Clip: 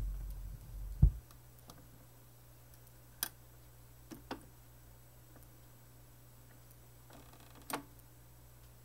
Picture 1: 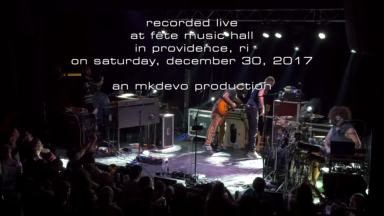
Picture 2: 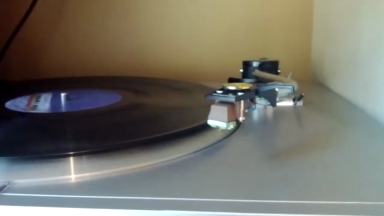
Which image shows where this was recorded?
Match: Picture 2